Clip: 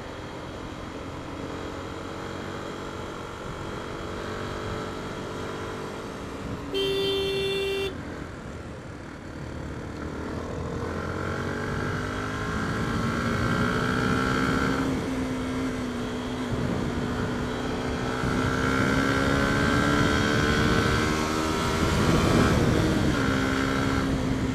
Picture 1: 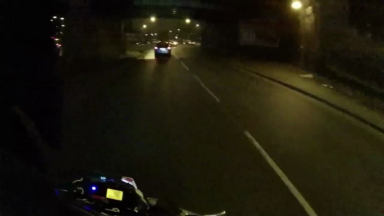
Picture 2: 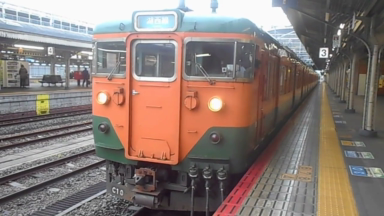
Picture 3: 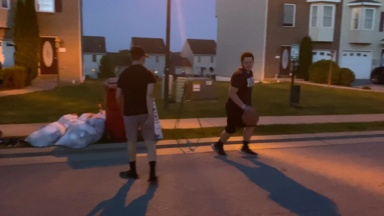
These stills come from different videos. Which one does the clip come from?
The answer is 1